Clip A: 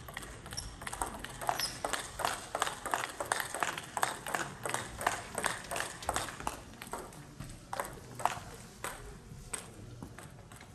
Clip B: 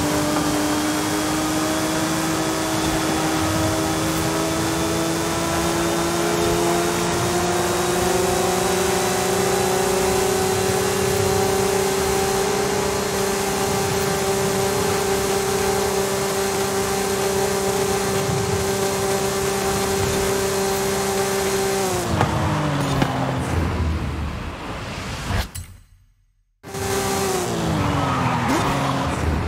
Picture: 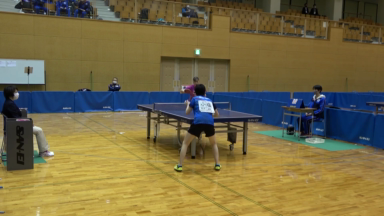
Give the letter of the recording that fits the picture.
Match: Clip A